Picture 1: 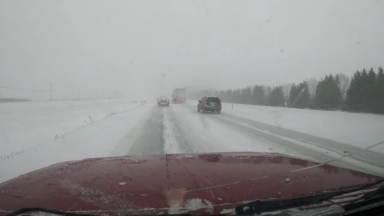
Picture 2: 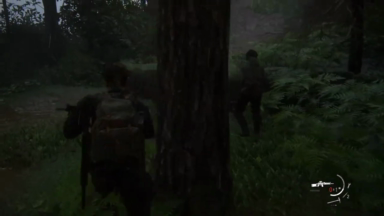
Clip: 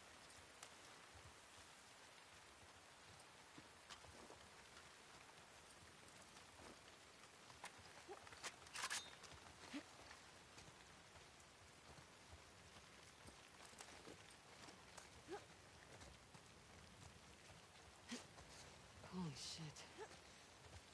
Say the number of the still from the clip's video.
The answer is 2